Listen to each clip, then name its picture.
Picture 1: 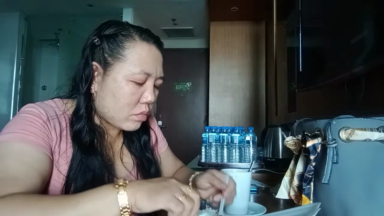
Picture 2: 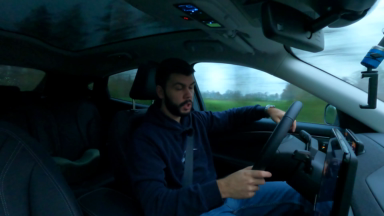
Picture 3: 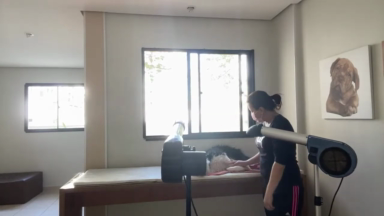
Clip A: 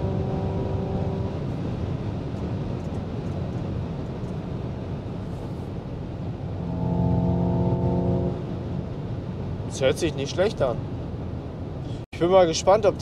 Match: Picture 2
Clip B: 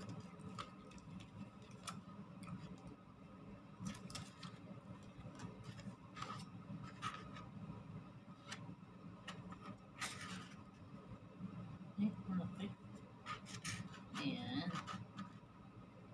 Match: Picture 1